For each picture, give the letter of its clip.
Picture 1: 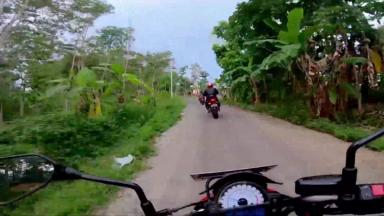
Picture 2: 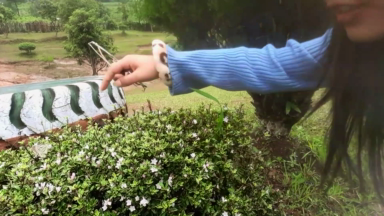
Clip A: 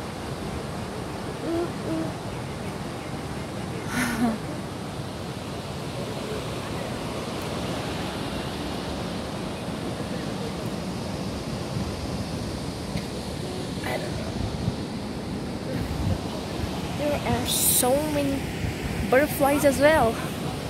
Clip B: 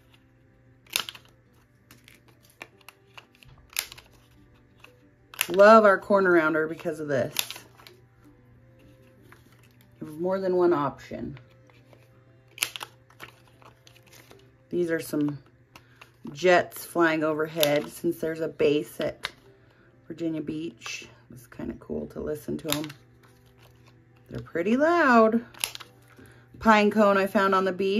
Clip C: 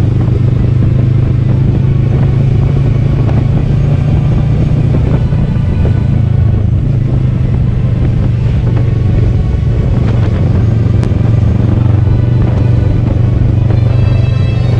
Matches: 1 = C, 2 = A